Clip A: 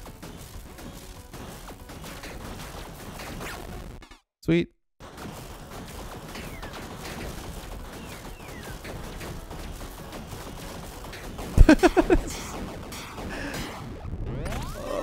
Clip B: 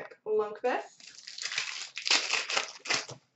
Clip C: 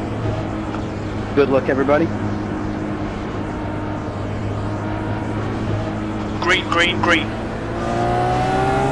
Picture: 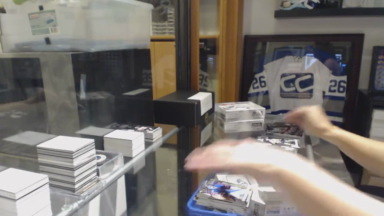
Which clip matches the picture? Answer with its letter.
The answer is B